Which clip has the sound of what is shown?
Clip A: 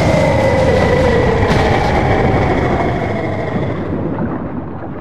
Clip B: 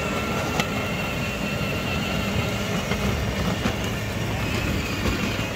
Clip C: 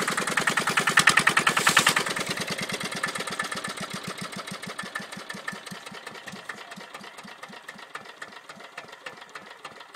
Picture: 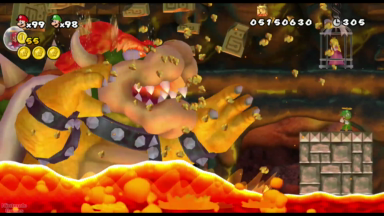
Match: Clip A